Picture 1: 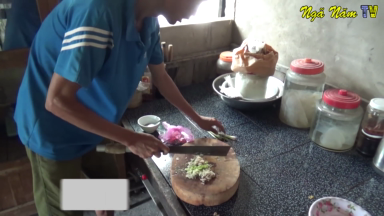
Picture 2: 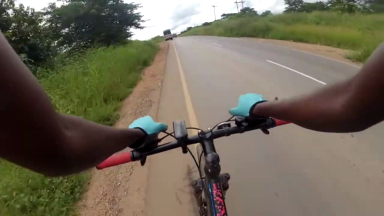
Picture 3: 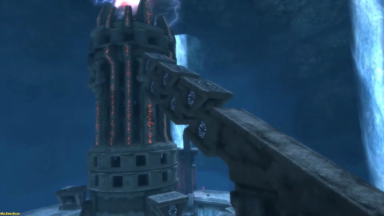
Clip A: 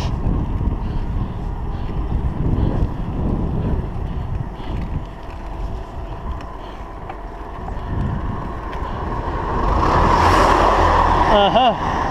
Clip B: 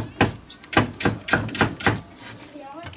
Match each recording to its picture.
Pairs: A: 2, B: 1